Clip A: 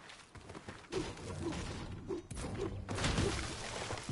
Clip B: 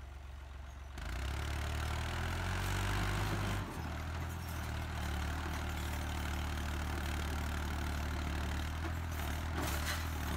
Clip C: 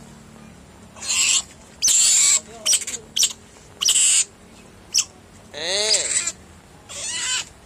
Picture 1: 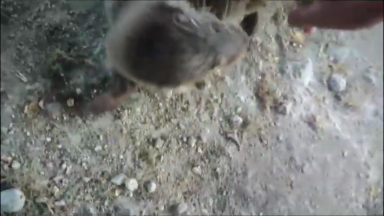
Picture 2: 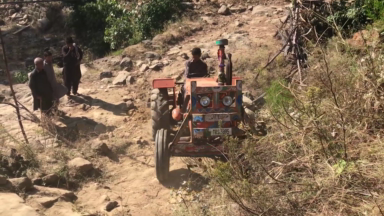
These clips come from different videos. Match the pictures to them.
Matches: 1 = C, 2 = B